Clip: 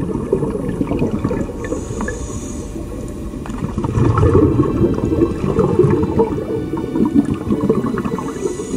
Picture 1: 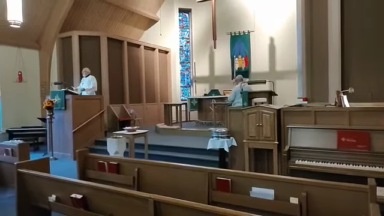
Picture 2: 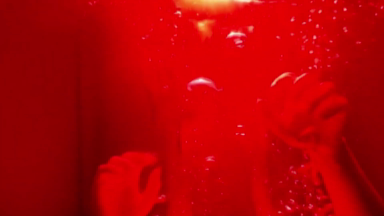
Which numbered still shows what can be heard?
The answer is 2